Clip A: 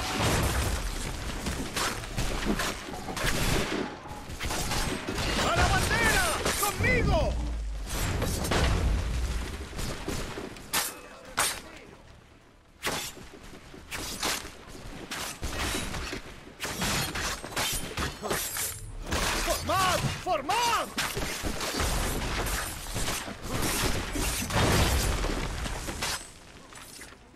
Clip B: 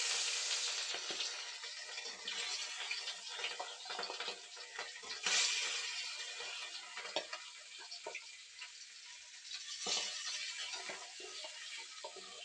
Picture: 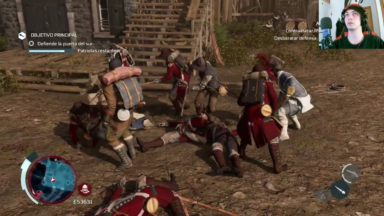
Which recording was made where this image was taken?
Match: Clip A